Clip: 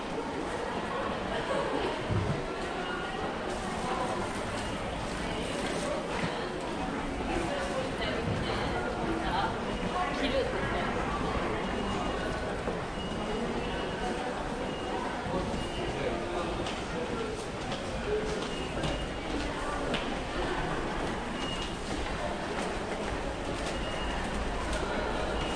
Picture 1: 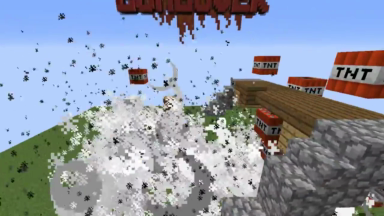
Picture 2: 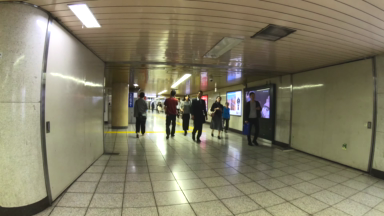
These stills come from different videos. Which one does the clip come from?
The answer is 2